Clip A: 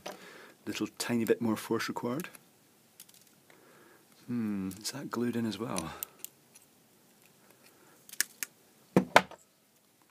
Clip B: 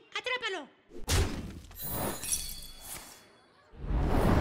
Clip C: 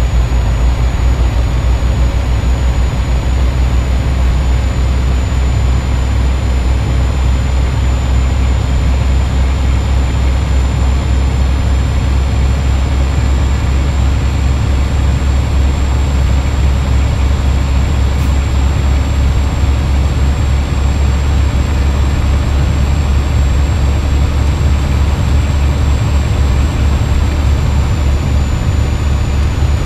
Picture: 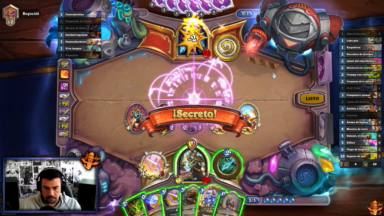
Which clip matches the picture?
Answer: B